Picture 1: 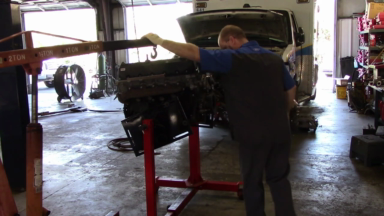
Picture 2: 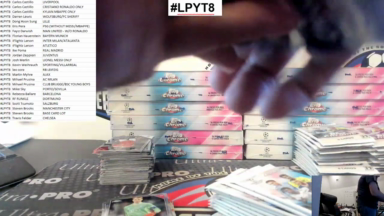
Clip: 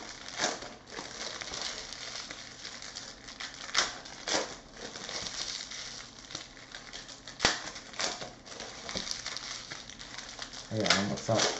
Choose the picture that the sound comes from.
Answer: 2